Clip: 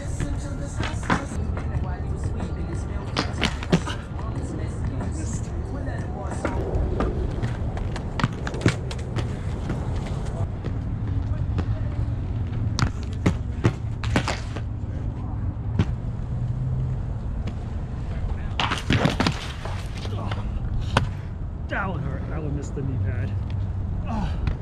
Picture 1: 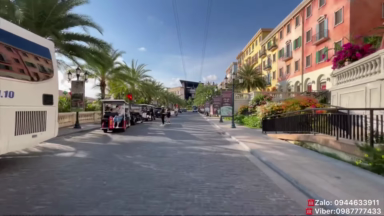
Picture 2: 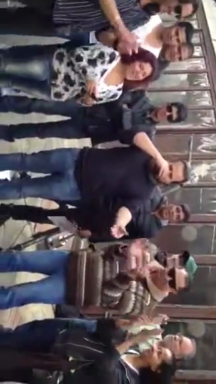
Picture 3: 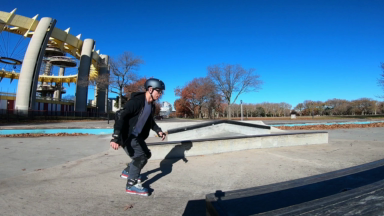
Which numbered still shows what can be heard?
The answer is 3